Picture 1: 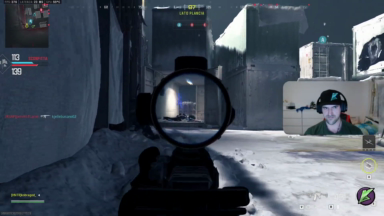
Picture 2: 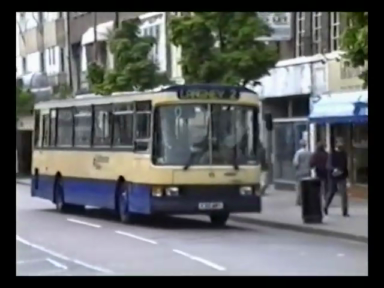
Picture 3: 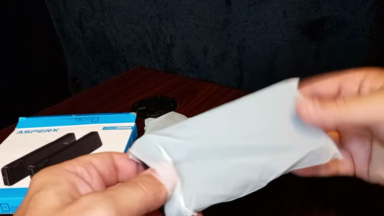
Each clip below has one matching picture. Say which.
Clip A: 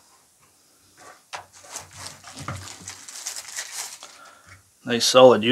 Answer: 3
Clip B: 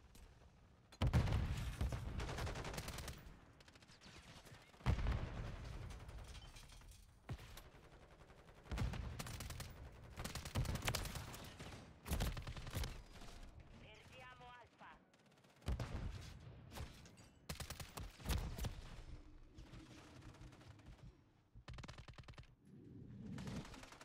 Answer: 1